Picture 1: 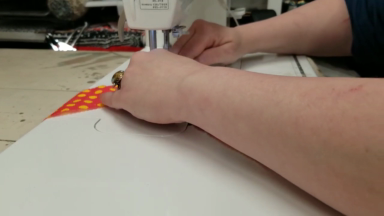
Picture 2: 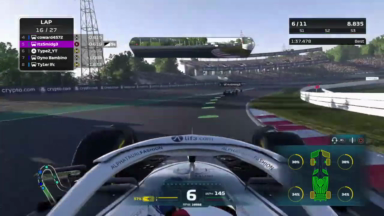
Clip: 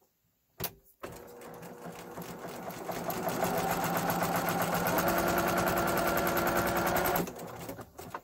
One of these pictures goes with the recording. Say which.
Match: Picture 1